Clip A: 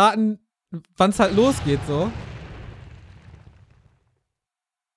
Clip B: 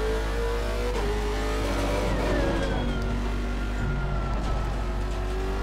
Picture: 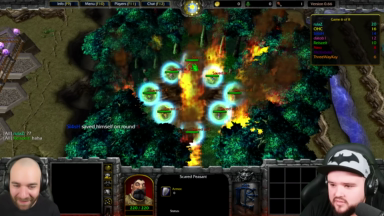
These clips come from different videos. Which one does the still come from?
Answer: A